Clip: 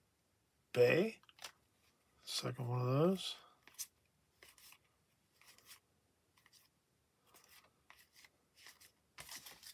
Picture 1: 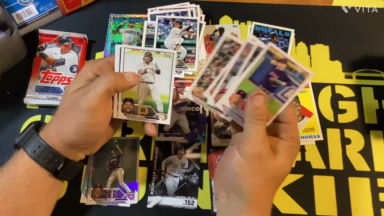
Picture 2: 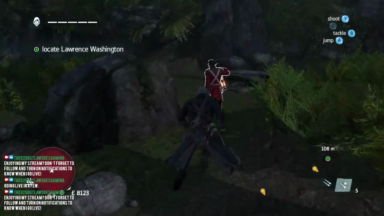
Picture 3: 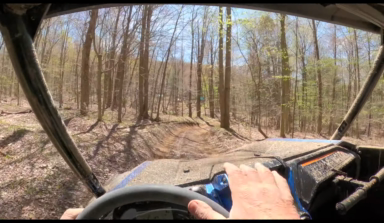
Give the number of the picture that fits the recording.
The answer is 1